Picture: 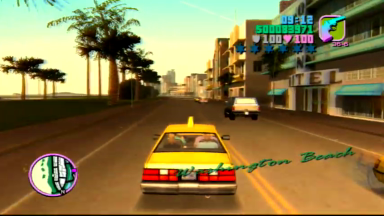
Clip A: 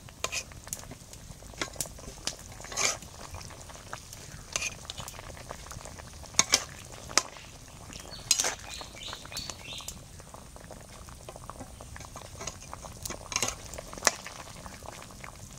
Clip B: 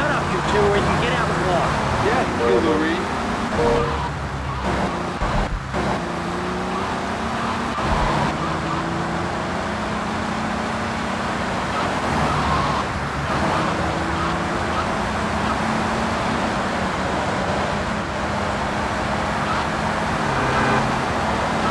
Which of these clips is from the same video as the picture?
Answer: B